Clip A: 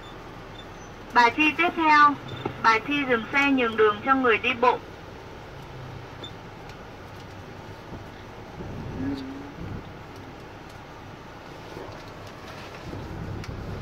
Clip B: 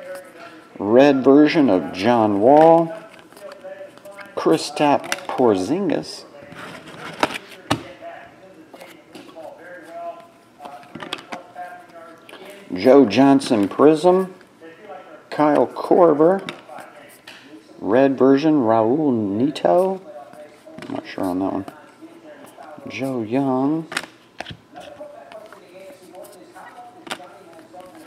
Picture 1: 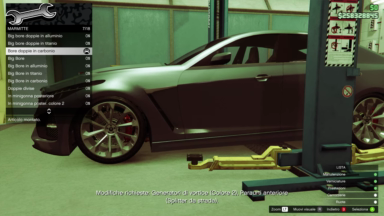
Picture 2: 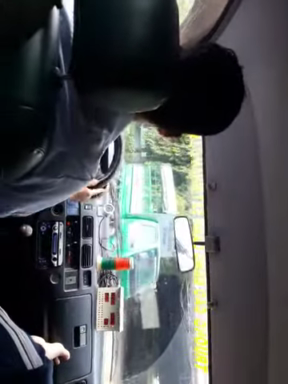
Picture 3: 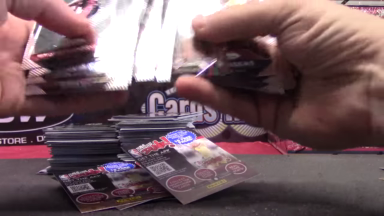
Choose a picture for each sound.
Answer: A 2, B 3